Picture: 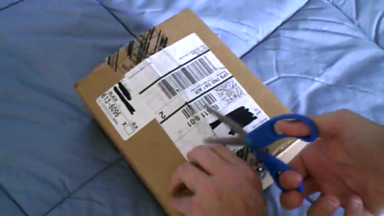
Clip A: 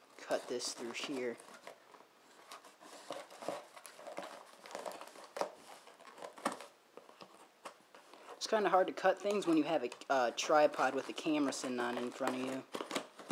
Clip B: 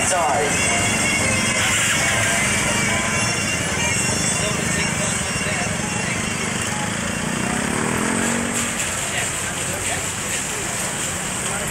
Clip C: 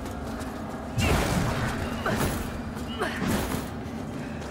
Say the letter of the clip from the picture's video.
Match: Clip A